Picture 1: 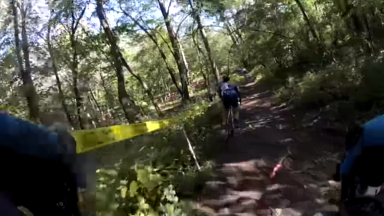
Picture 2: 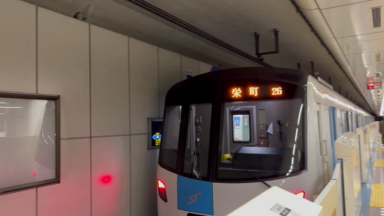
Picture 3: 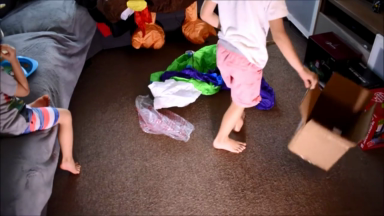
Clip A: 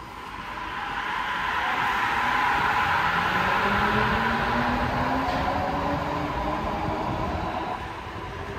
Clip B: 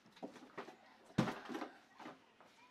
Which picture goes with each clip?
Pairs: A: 2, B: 3